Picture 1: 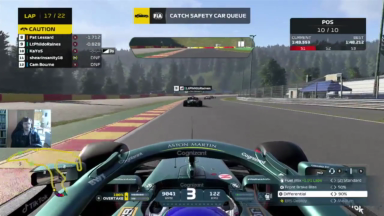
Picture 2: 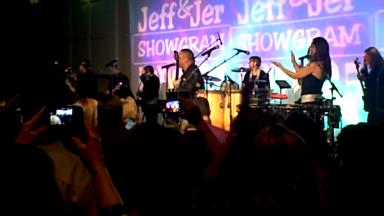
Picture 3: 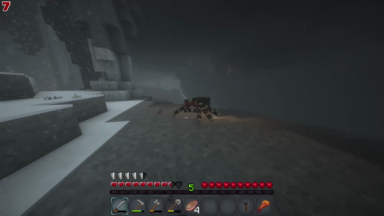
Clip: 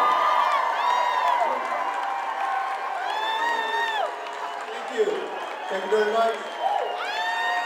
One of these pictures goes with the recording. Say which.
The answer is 2